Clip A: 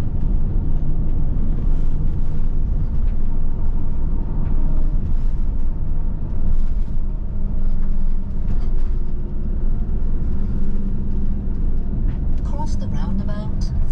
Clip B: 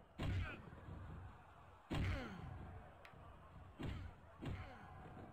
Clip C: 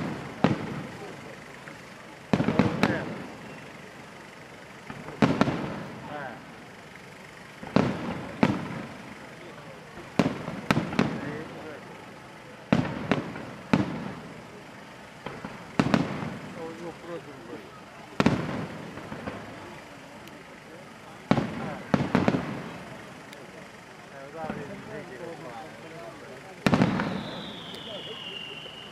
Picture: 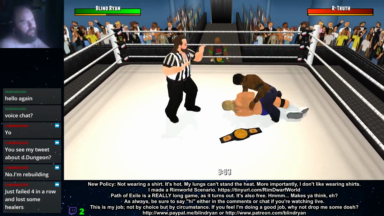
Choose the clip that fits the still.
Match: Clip B